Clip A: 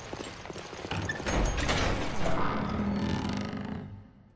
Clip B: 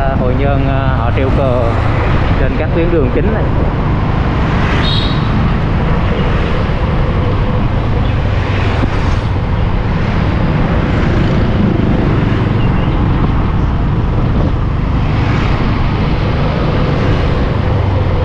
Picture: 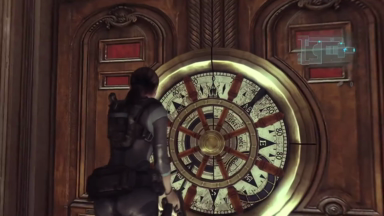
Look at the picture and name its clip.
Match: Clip A